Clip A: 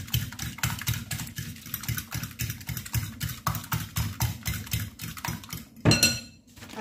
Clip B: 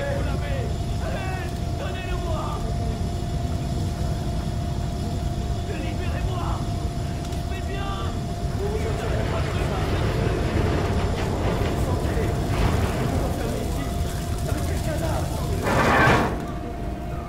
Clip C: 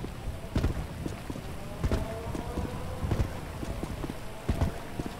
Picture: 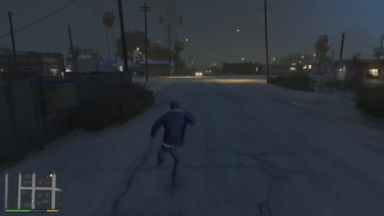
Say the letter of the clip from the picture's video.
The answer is C